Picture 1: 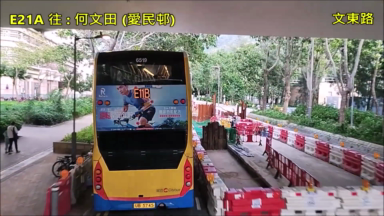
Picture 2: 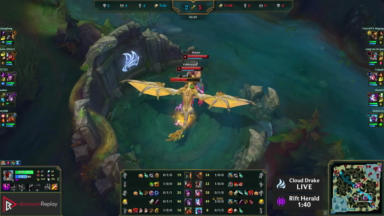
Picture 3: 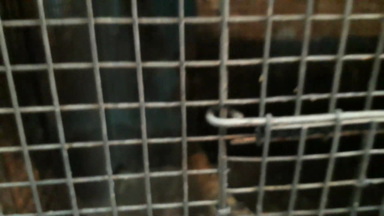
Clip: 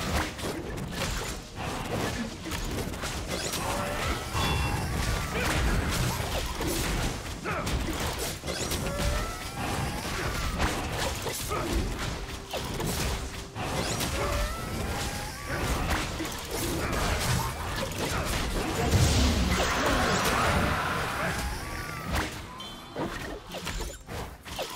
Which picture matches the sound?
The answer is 2